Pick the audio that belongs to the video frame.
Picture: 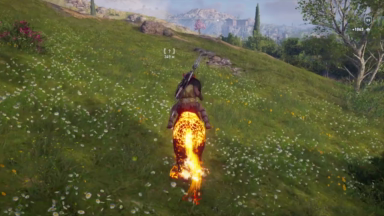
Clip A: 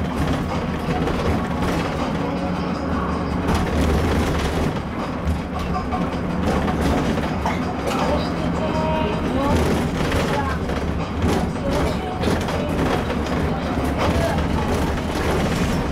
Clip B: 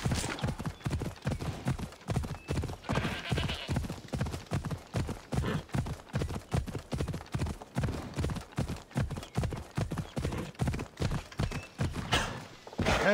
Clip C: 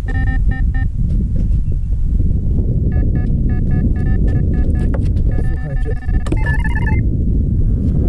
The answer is B